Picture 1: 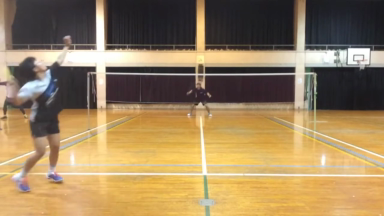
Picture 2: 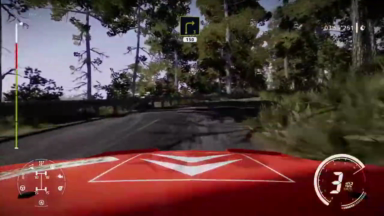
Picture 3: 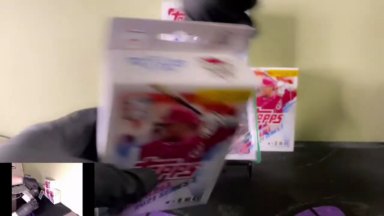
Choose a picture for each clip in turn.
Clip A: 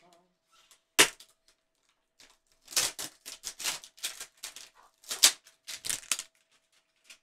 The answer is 3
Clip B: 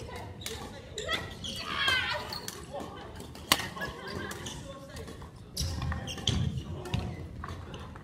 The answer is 1